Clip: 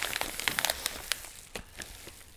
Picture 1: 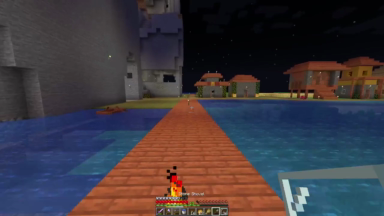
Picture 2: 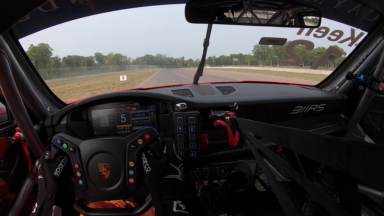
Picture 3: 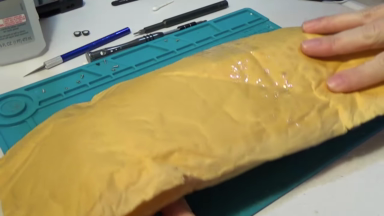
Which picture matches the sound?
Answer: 3